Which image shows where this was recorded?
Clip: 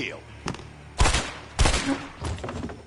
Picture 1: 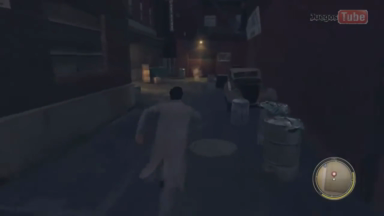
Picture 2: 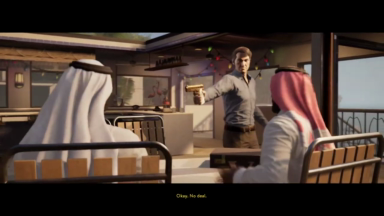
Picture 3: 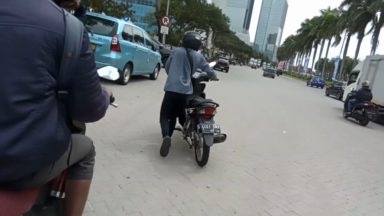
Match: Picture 2